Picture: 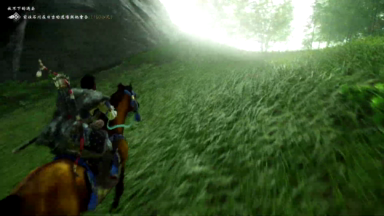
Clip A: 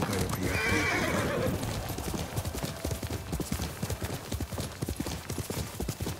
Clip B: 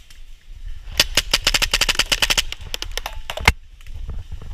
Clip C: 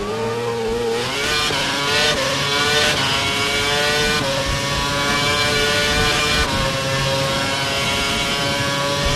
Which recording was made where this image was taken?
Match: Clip A